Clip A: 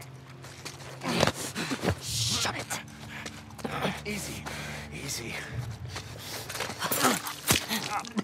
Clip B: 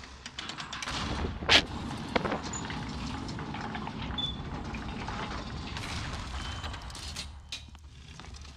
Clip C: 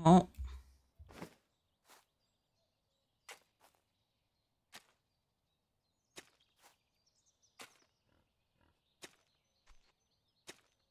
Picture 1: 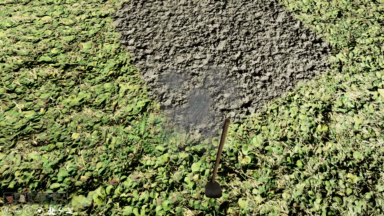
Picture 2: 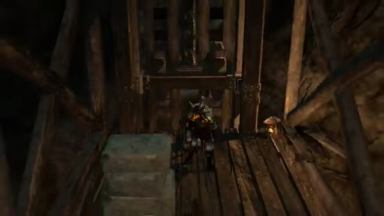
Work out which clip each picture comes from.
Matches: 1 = C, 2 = B